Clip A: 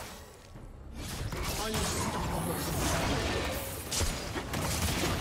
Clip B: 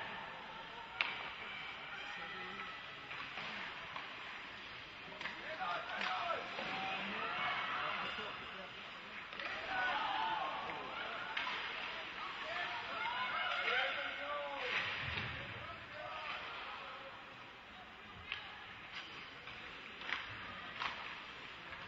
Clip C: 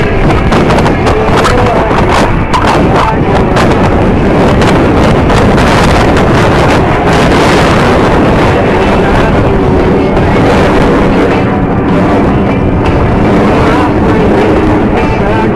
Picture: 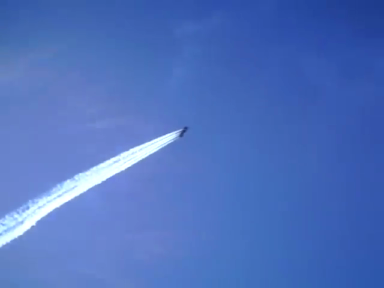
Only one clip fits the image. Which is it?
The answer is C